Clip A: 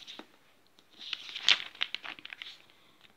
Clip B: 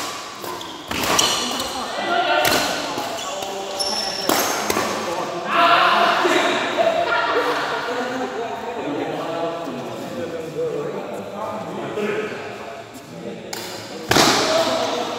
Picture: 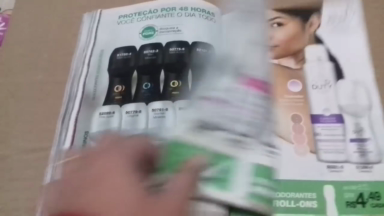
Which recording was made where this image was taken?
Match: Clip A